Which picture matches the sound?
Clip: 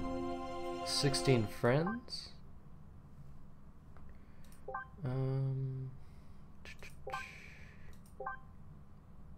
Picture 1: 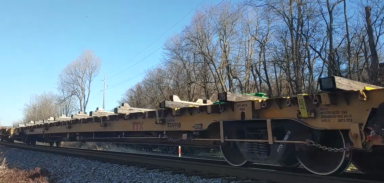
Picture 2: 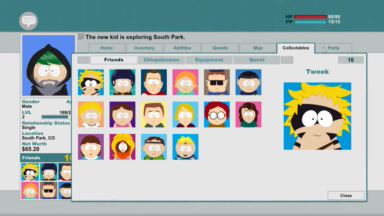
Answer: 2